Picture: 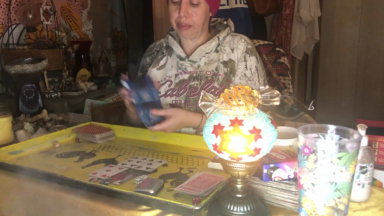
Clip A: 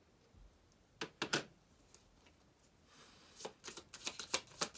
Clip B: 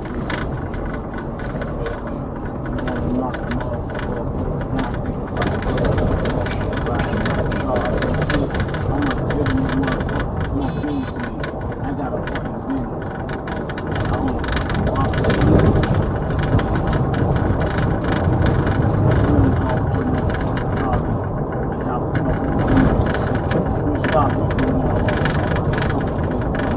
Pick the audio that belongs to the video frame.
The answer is A